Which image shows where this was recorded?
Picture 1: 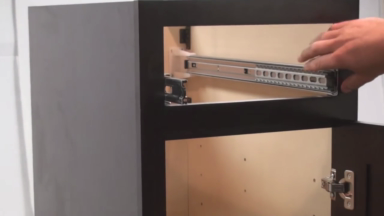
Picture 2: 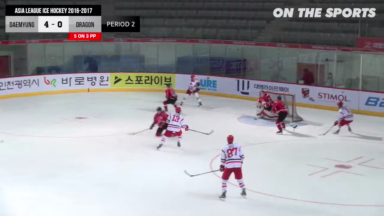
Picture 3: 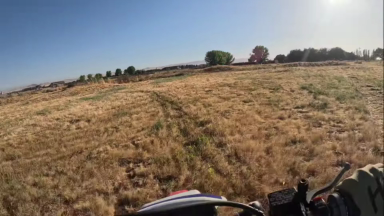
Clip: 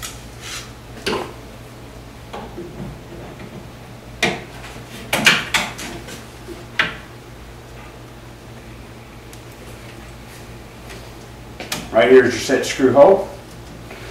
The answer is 1